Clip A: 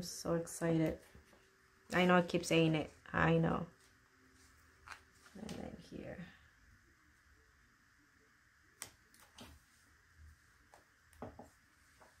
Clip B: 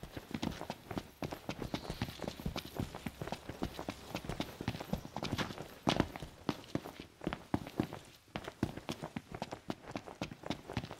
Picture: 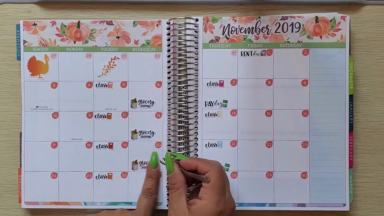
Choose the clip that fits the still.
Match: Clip A